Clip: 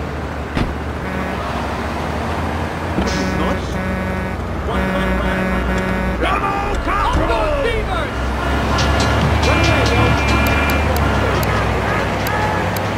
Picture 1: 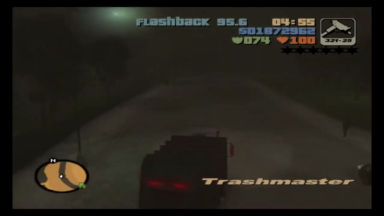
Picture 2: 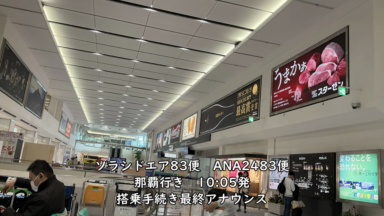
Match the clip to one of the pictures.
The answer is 1